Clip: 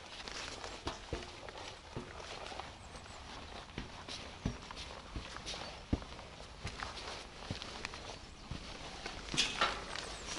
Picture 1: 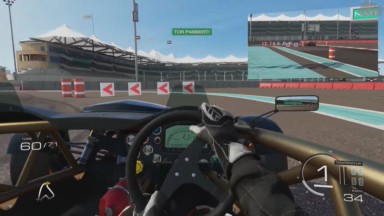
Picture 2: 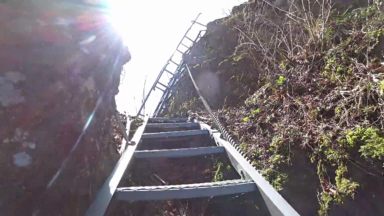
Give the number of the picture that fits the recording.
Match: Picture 2